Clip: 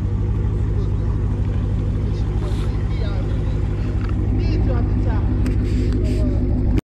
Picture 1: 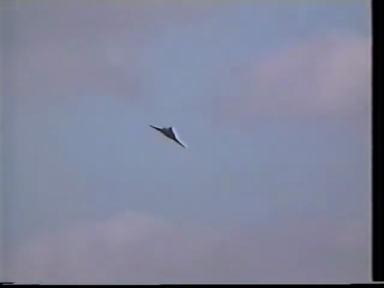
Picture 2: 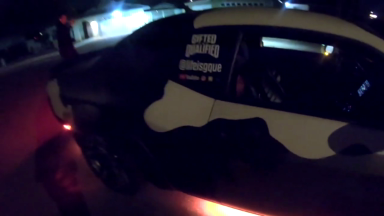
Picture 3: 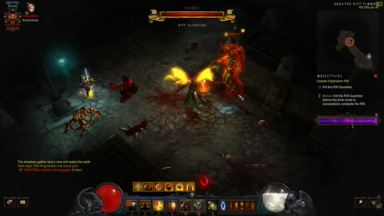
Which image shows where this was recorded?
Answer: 2